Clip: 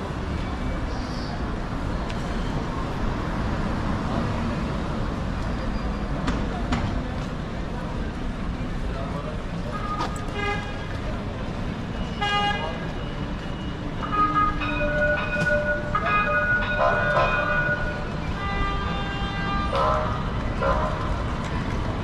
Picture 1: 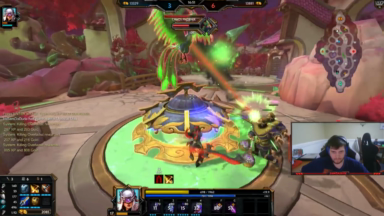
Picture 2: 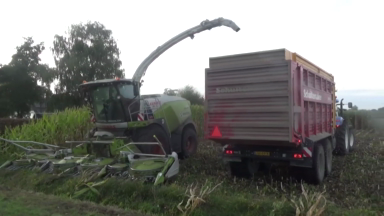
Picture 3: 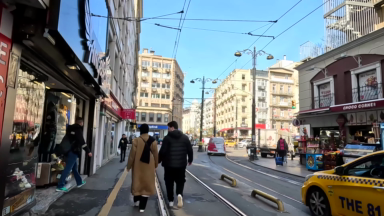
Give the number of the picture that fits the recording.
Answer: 3